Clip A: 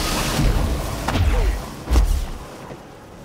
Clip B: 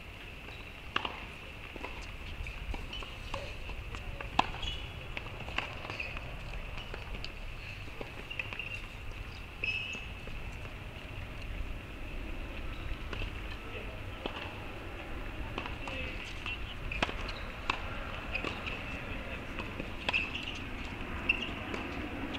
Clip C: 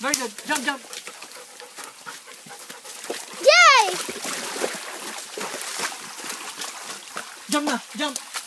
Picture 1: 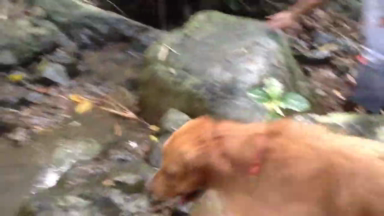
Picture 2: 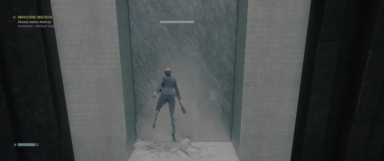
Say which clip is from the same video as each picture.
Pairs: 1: C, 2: A